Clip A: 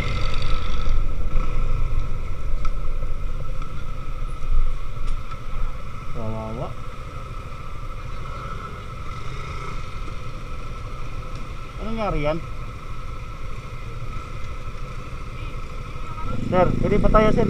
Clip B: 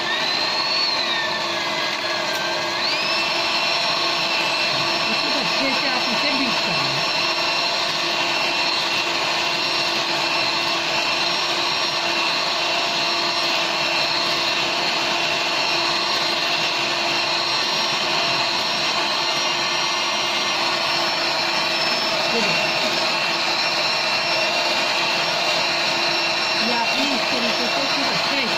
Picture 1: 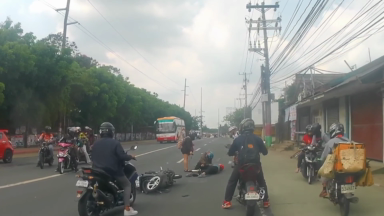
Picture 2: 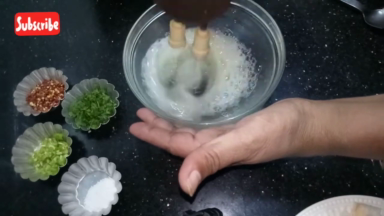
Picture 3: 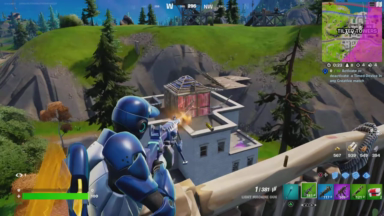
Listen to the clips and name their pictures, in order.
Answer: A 1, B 2